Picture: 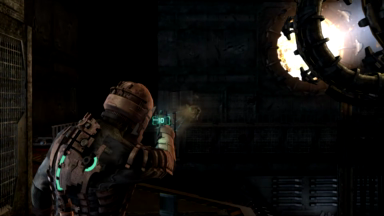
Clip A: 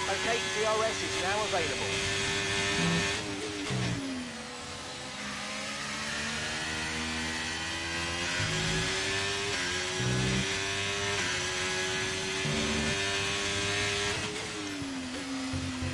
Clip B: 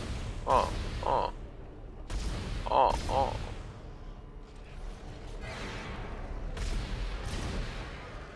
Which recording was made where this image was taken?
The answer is B